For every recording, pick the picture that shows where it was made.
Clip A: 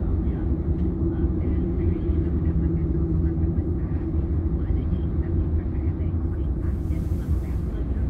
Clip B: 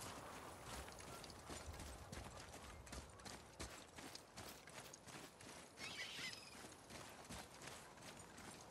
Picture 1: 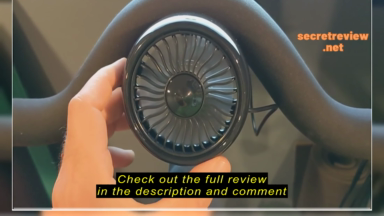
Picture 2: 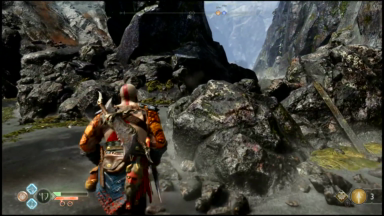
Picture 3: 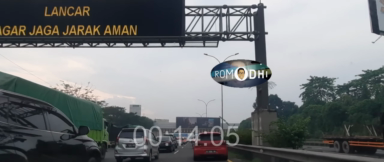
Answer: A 3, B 2